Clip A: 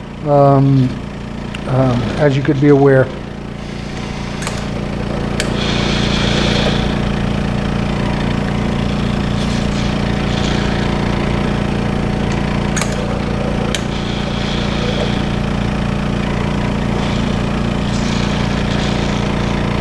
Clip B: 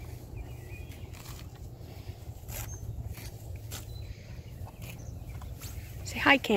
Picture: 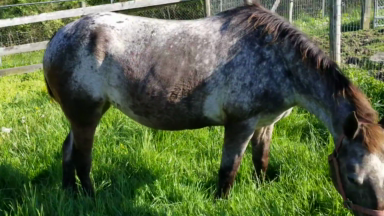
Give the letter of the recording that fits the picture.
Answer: B